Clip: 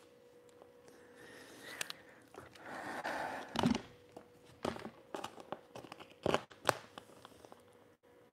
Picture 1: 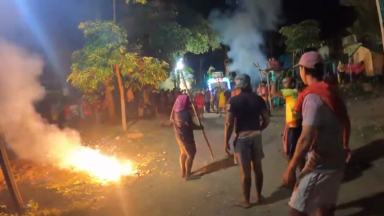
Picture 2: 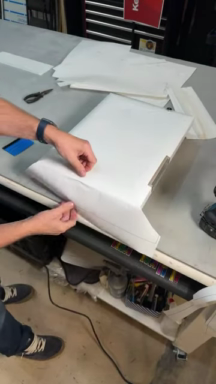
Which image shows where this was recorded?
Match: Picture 2